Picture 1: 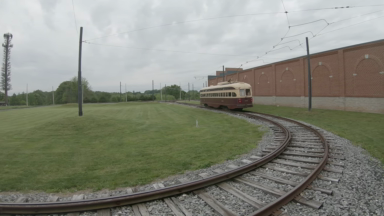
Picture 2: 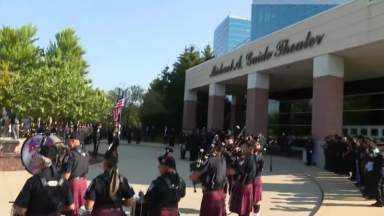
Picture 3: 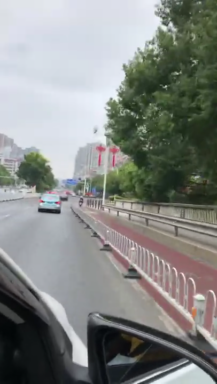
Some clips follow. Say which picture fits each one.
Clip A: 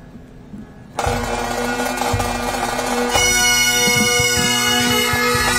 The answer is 2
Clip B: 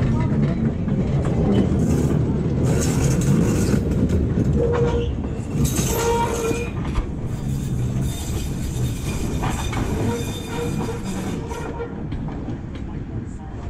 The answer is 1